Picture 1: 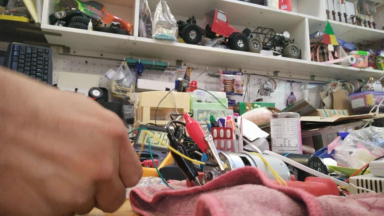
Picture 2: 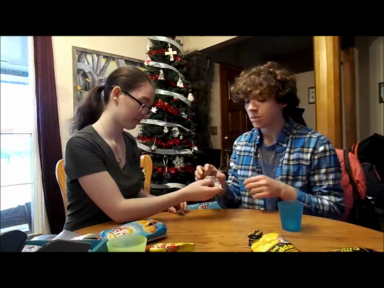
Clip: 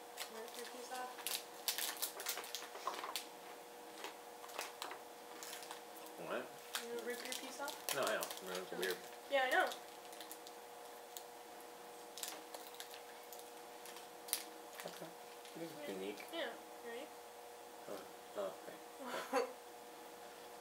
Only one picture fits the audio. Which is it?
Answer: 2